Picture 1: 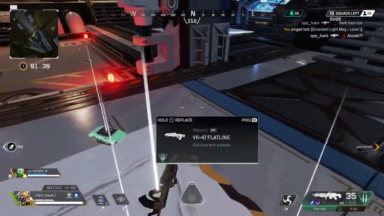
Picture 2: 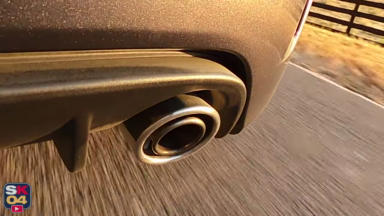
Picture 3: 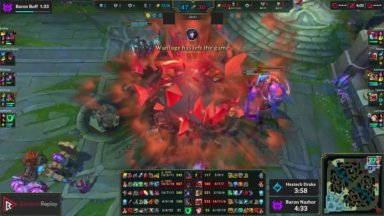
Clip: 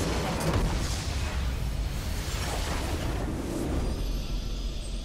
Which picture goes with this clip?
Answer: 3